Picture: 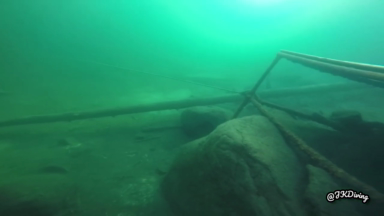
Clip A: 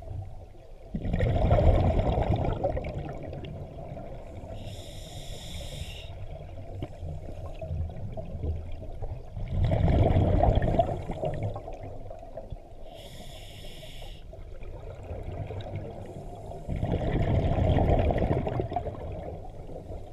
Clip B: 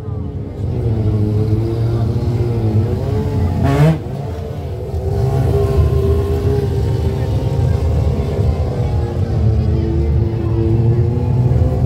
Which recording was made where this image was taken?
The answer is A